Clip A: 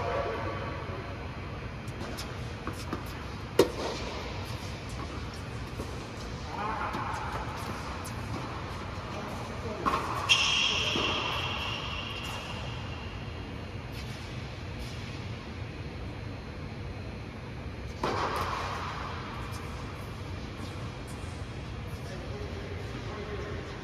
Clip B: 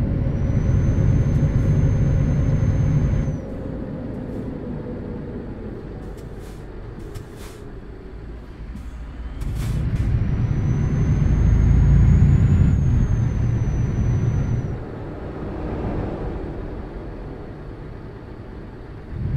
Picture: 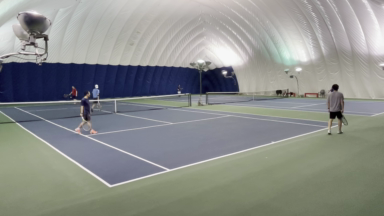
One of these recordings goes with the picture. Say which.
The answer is A